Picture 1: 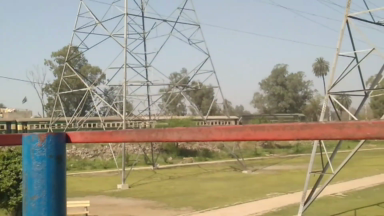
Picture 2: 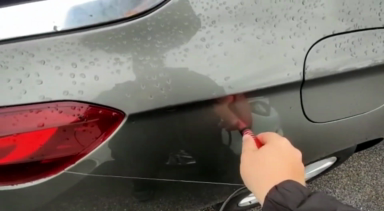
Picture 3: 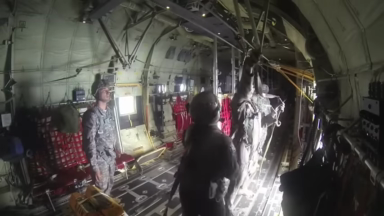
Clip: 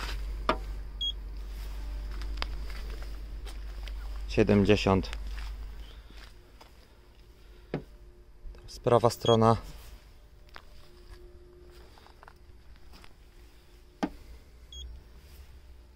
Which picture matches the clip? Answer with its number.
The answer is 2